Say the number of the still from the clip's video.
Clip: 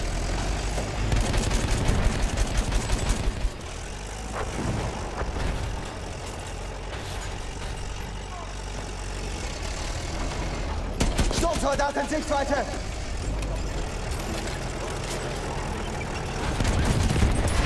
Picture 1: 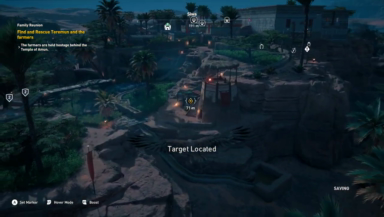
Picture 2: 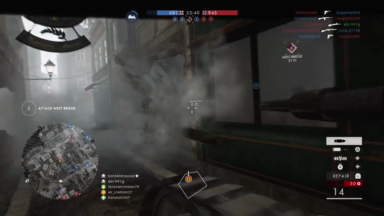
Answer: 2